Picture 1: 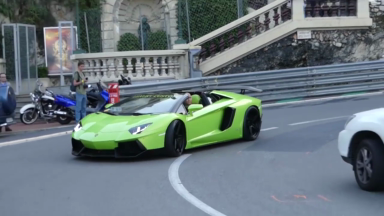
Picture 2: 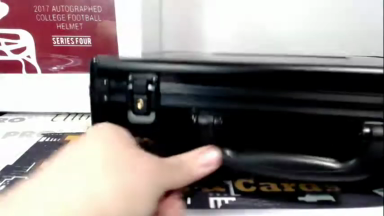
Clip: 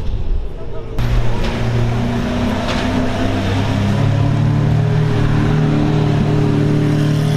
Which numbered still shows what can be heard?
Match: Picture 1